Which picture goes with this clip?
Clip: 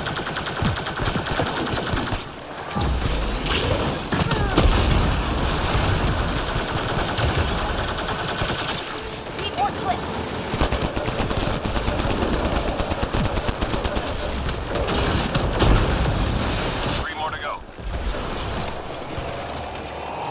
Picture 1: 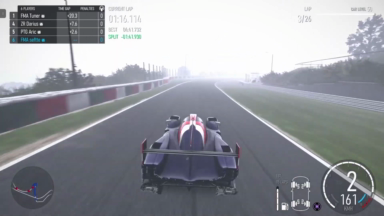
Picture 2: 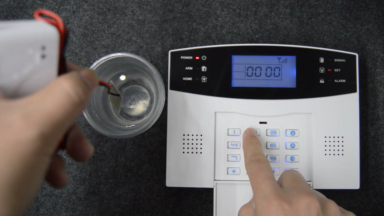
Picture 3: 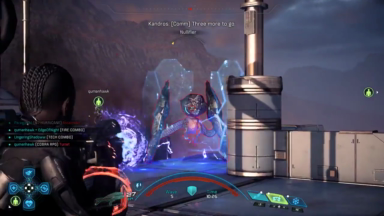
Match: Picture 3